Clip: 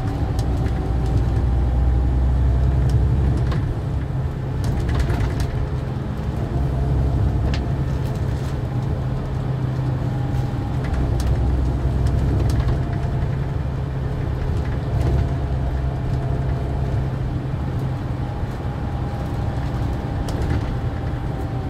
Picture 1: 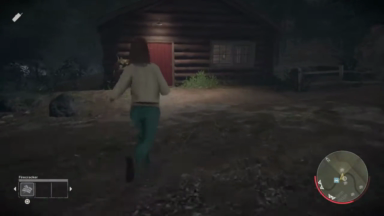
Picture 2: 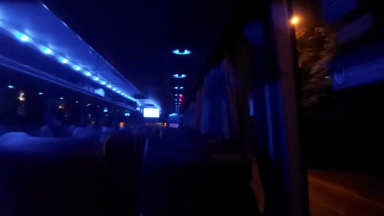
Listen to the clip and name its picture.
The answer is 2